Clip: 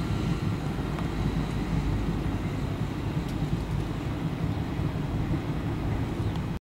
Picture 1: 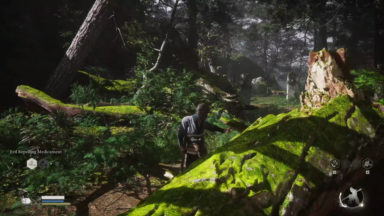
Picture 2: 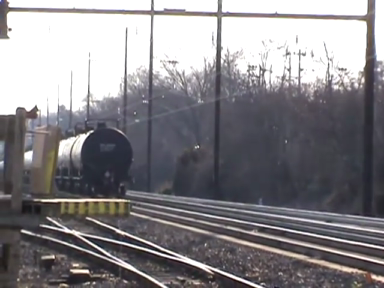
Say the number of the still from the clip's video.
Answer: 2